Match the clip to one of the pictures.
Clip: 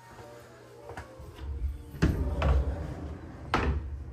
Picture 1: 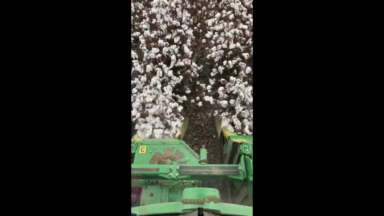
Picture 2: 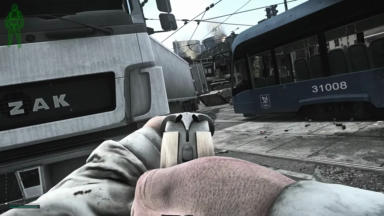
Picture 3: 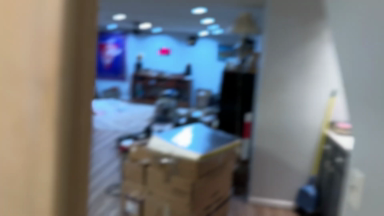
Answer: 3